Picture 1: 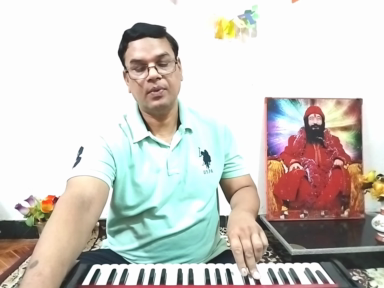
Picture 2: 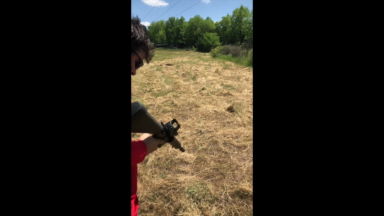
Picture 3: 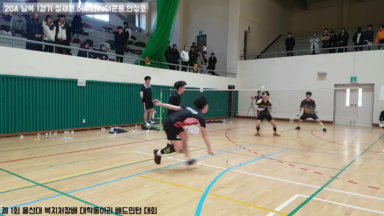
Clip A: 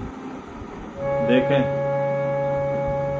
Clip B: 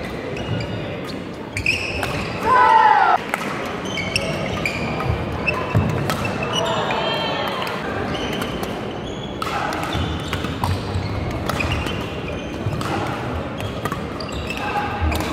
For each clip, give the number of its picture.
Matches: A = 1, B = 3